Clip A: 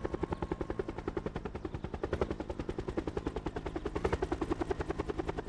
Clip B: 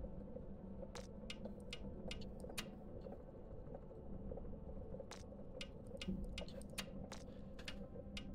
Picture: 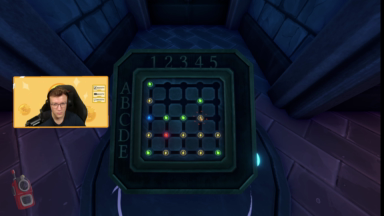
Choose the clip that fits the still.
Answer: B